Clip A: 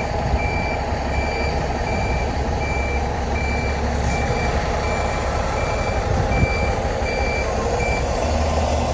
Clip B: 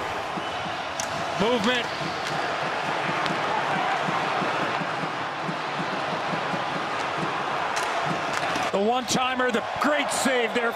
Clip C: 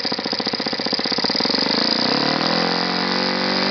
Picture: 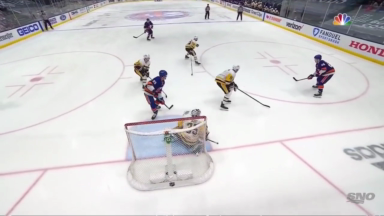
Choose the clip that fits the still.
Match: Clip B